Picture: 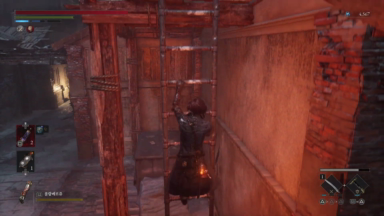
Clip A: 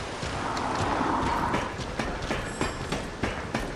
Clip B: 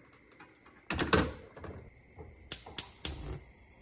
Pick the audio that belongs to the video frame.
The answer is A